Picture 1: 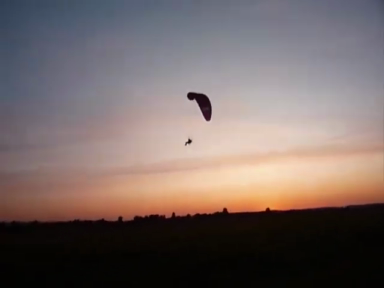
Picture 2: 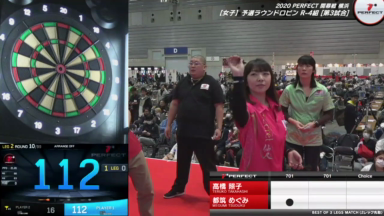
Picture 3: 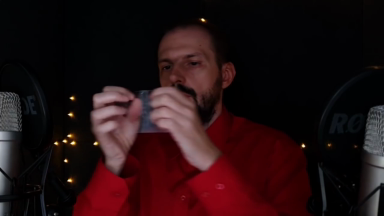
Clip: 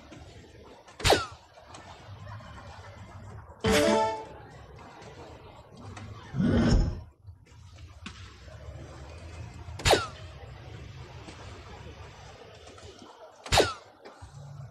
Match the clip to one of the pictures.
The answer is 2